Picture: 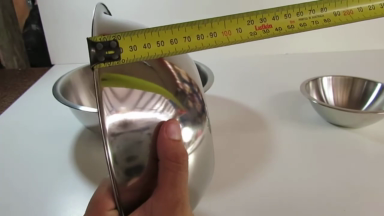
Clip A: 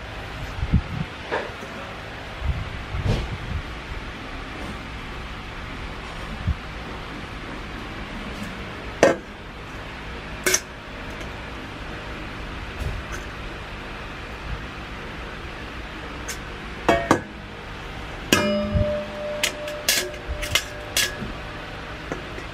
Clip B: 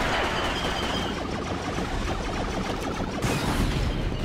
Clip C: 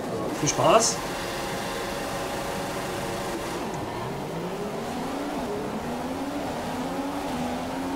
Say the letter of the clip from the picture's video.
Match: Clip A